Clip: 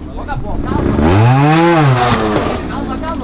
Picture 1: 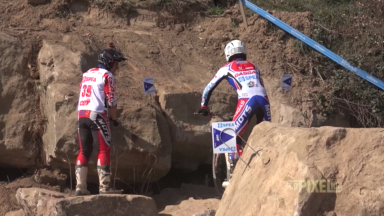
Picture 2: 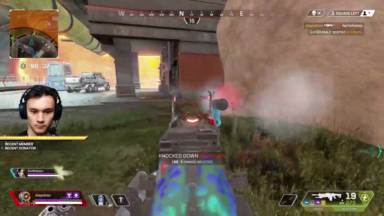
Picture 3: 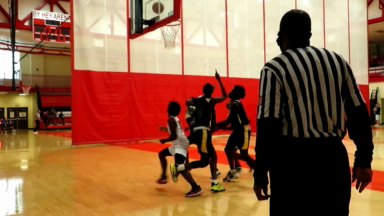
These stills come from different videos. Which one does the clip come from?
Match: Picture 1